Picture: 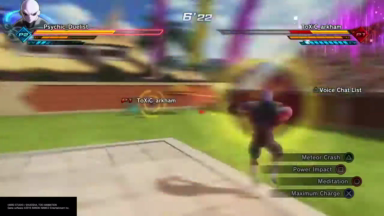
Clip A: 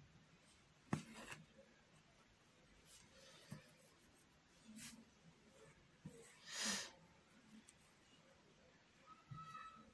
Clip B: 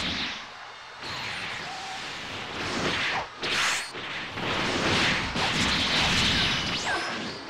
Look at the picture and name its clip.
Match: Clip B